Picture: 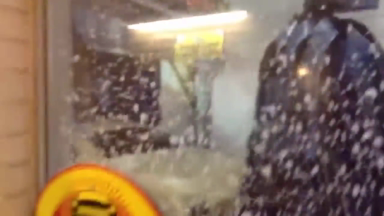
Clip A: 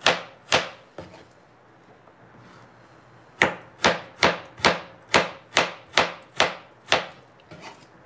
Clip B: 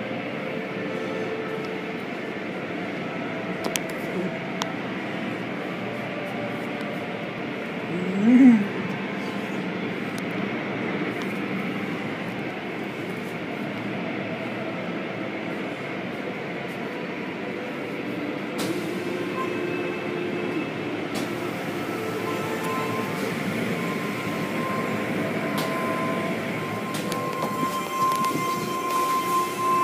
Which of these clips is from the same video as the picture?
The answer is B